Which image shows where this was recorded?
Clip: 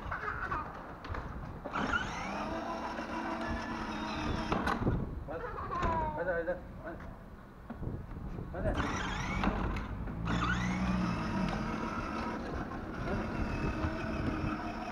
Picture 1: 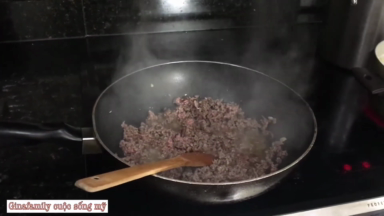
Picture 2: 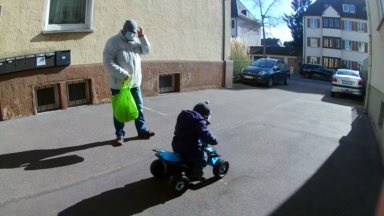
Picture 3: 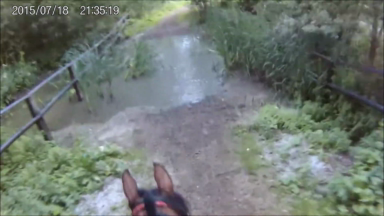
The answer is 2